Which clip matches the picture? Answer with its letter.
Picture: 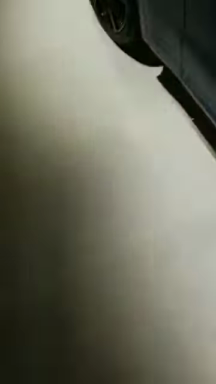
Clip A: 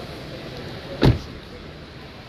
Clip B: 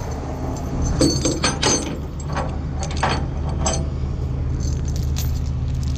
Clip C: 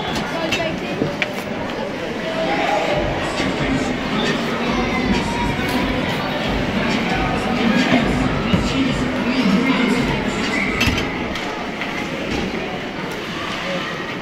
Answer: A